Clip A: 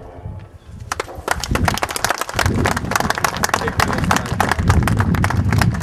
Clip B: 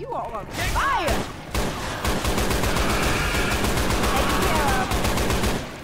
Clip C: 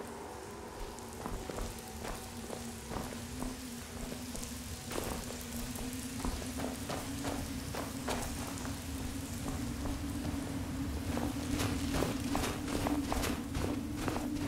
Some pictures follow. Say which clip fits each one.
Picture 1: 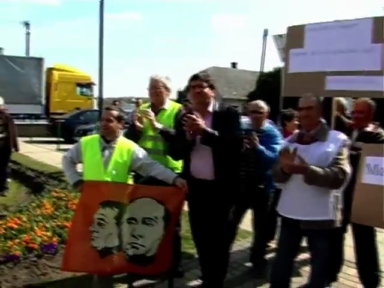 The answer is A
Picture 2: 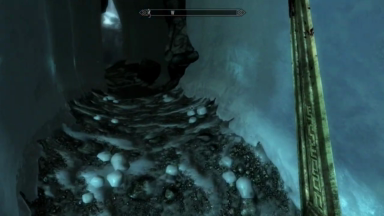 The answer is C